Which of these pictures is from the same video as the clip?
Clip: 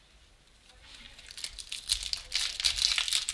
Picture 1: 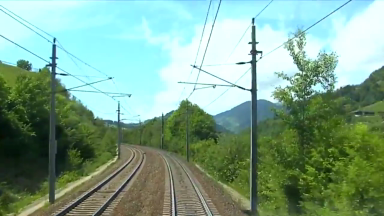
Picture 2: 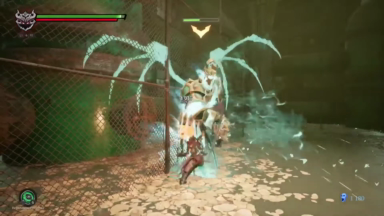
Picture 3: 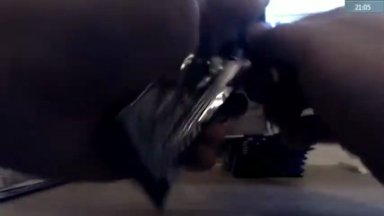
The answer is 3